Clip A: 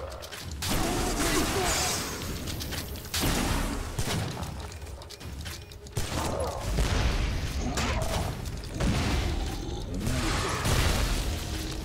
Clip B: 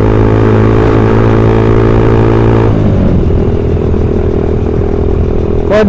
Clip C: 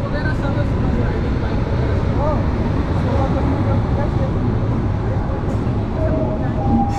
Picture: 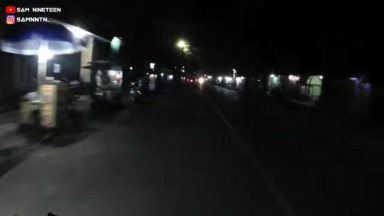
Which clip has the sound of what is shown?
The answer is B